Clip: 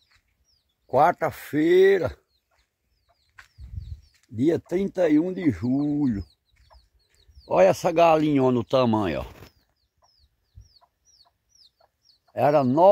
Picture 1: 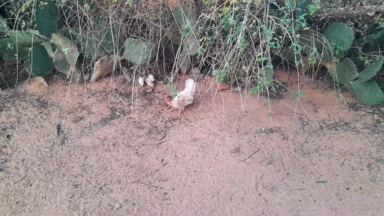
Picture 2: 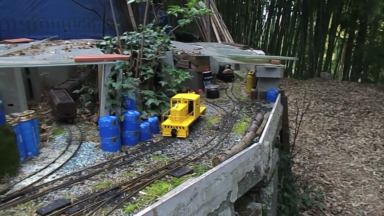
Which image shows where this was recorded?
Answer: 1